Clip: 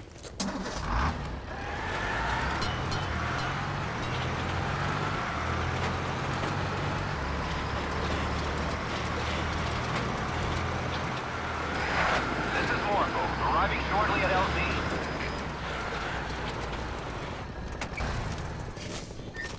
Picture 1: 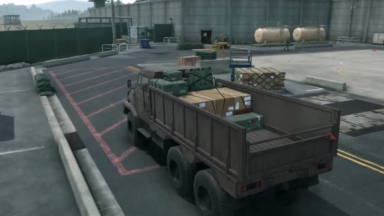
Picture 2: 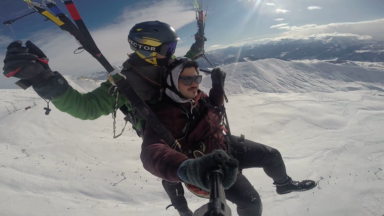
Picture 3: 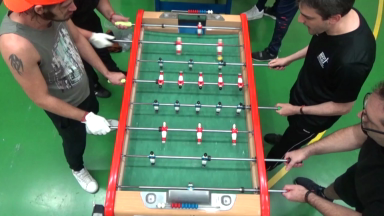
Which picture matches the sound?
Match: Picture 1